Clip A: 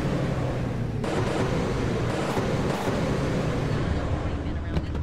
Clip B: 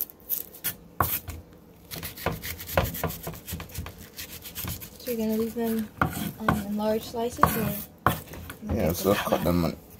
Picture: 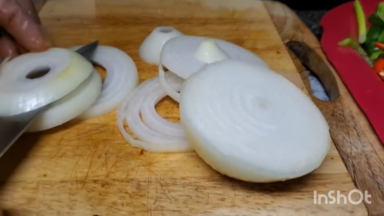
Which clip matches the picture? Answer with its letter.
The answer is B